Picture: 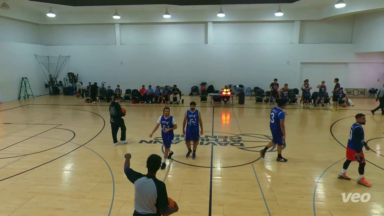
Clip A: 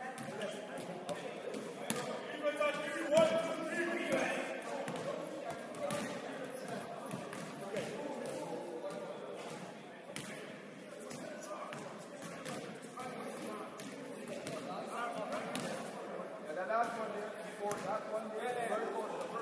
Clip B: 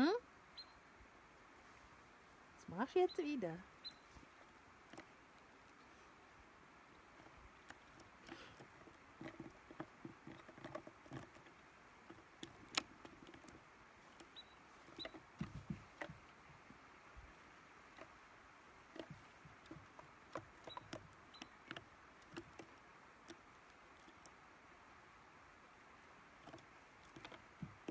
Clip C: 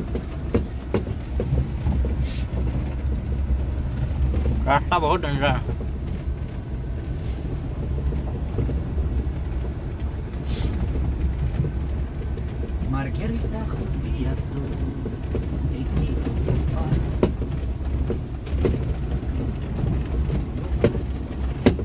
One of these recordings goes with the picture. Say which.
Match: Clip A